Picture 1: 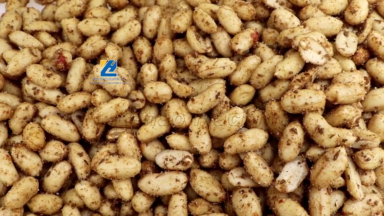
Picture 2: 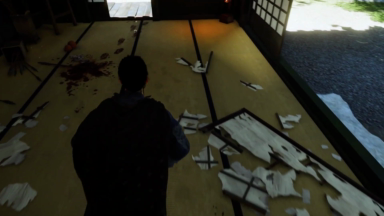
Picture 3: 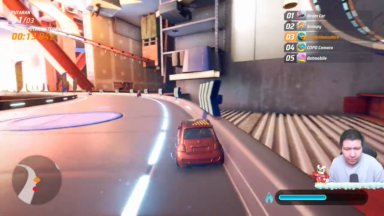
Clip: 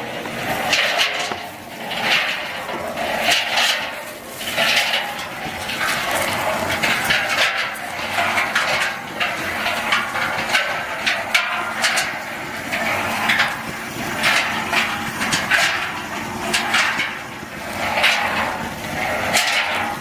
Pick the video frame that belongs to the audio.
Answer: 1